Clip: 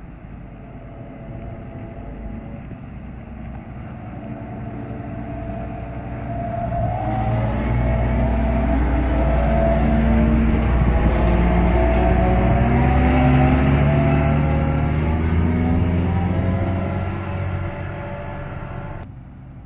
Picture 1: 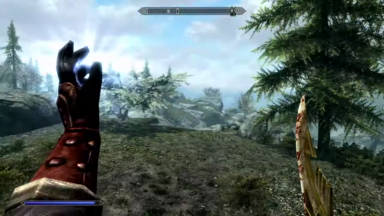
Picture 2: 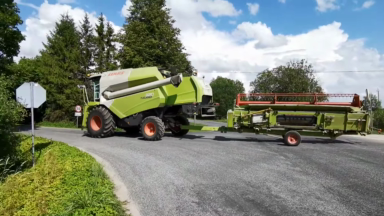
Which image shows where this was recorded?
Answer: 2